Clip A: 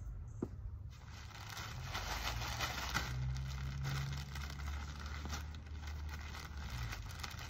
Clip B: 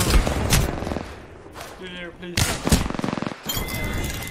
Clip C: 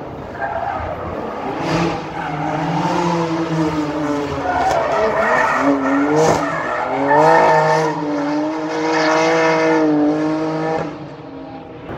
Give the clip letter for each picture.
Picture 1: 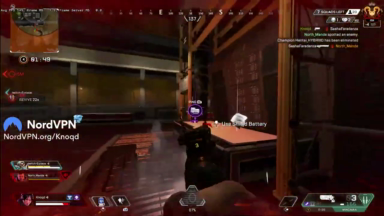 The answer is B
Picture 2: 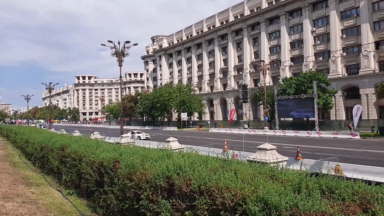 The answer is C